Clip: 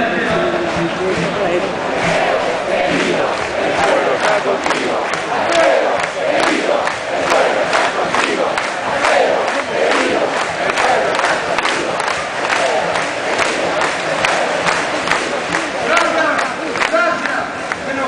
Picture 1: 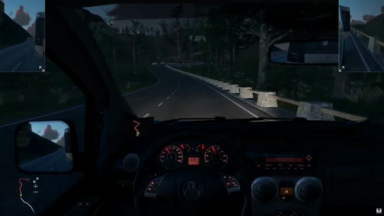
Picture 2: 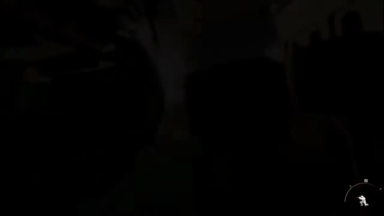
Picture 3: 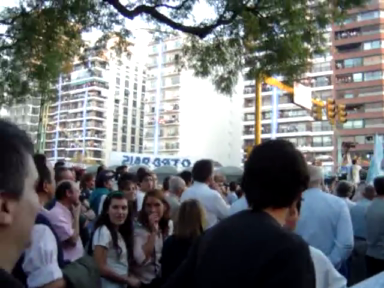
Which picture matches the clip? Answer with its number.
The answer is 3